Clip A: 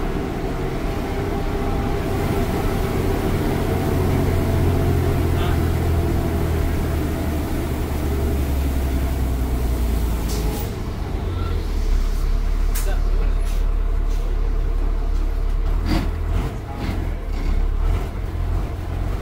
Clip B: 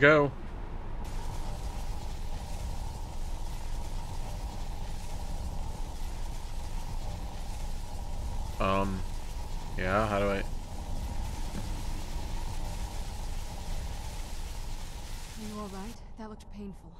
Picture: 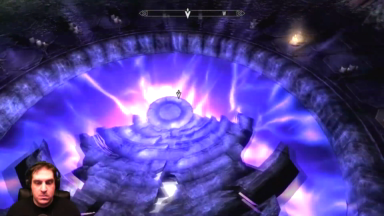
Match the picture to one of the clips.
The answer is B